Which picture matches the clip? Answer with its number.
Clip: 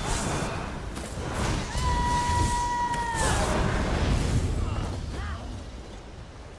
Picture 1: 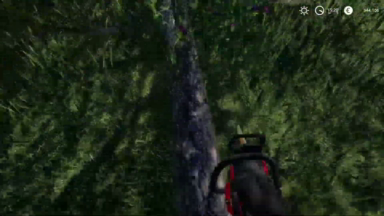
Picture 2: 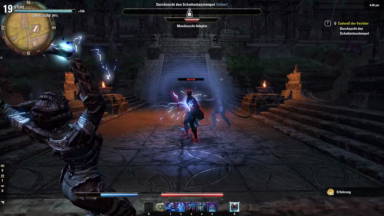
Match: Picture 2